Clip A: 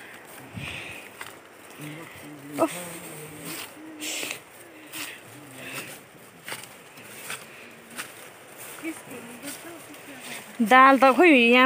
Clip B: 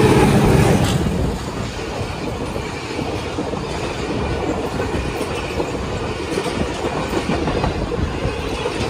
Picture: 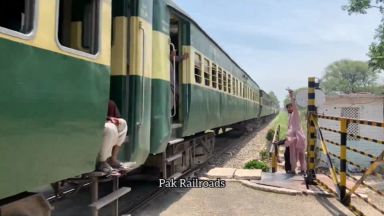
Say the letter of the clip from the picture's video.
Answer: B